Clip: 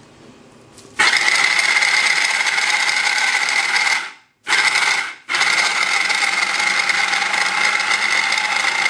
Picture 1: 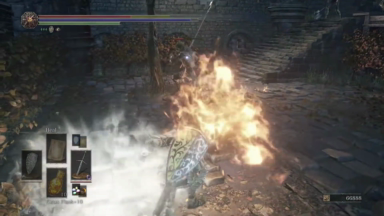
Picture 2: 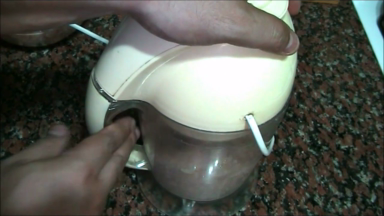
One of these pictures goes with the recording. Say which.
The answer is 2